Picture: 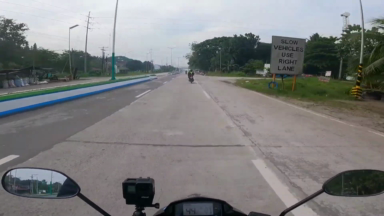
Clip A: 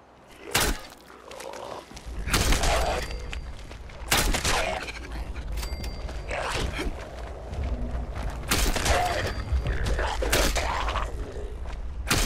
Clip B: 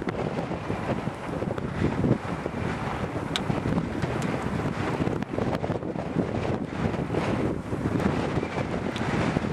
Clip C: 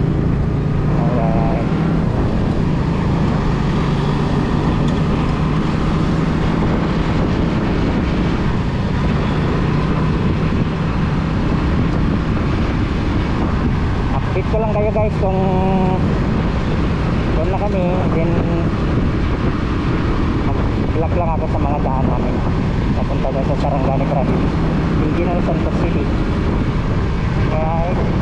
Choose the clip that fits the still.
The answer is C